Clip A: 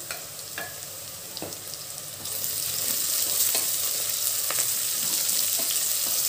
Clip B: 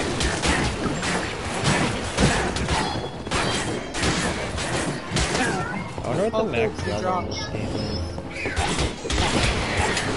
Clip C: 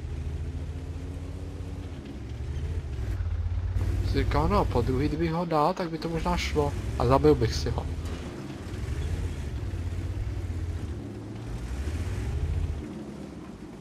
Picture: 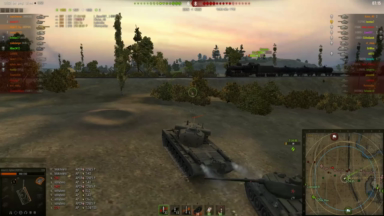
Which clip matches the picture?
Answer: C